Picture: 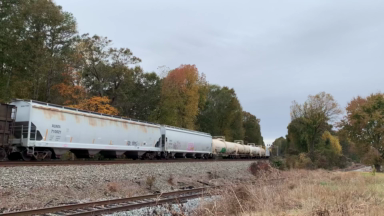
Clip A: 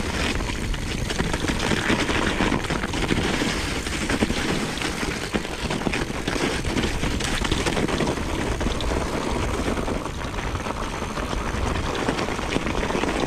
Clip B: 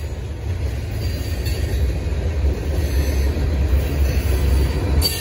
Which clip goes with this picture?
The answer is B